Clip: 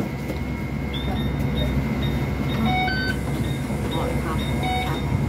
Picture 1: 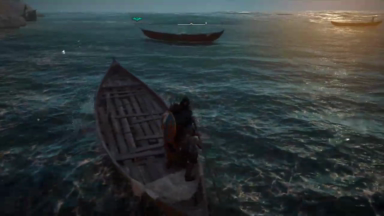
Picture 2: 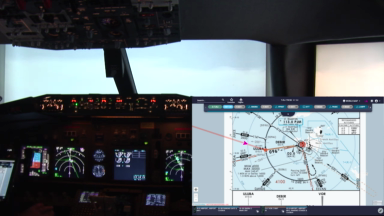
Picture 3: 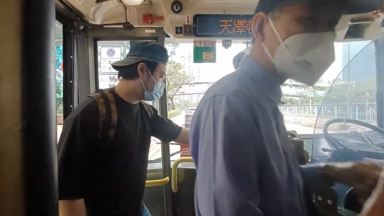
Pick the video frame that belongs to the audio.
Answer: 3